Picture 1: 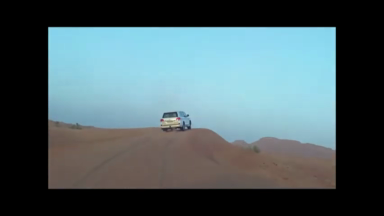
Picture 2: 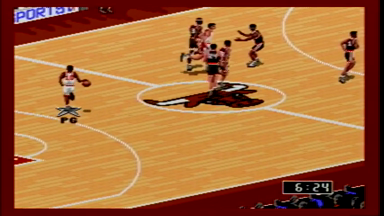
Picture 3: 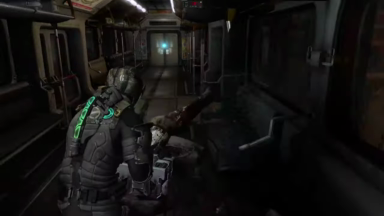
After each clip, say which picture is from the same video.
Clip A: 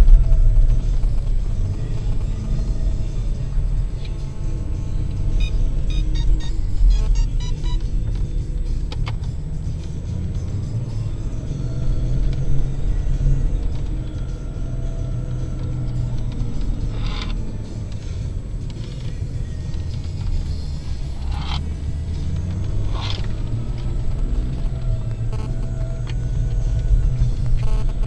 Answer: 1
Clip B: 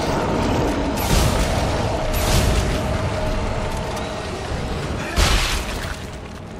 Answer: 3